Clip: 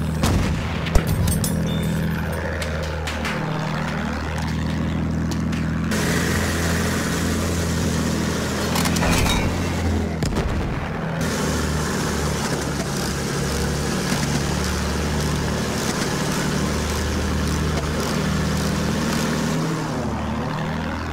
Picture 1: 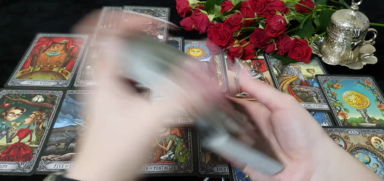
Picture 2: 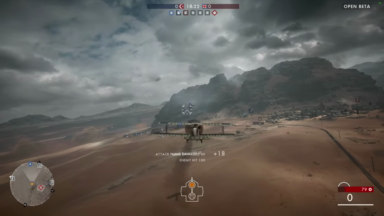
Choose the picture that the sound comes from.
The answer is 2